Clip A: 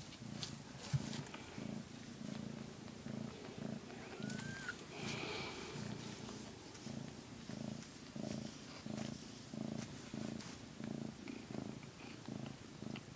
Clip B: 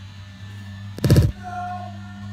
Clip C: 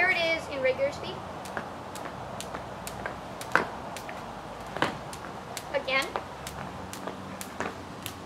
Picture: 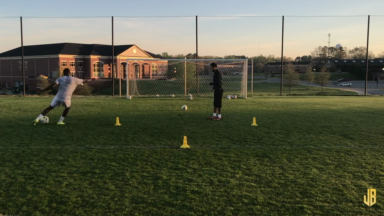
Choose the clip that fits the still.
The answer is B